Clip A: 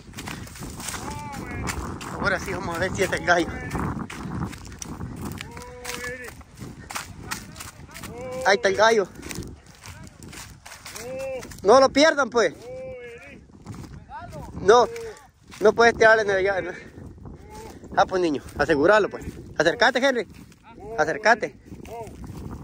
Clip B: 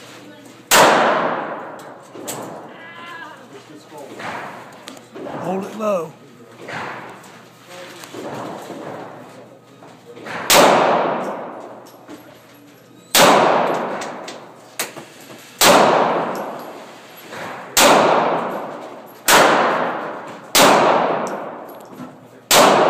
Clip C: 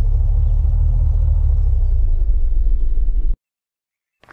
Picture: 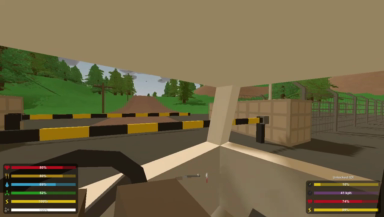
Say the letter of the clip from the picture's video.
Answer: C